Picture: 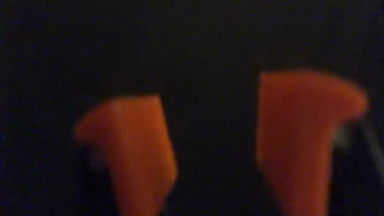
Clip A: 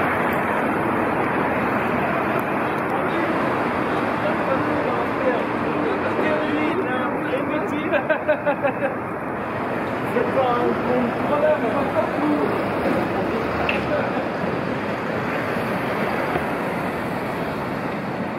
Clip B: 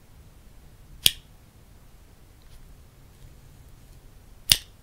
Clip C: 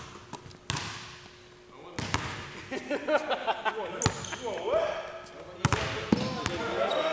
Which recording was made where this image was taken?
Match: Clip B